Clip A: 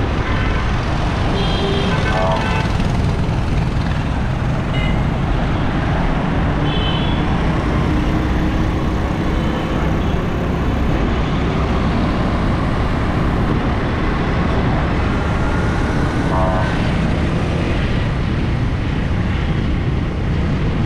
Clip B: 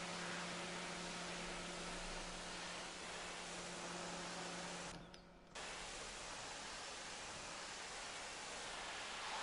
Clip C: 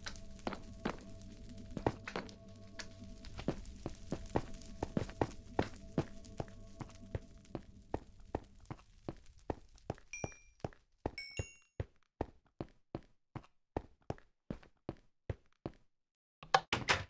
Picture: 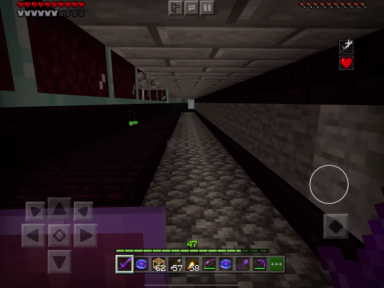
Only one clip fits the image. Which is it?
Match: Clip C